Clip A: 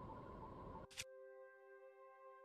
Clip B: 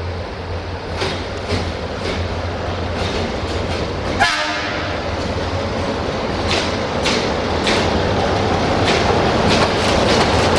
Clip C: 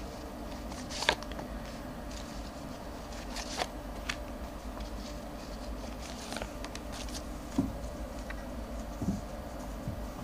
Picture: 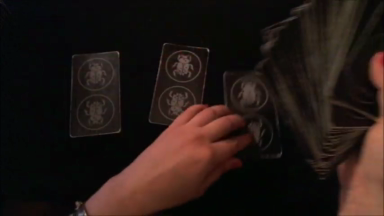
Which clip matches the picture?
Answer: C